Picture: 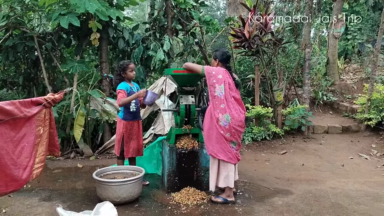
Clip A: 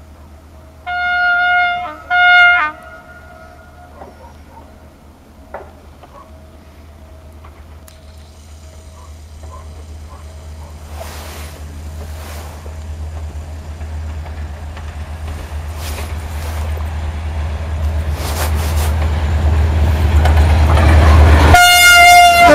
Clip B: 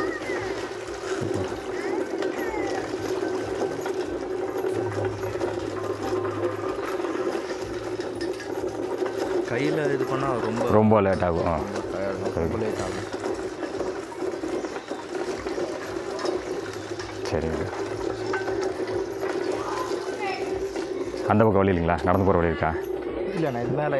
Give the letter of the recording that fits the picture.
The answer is B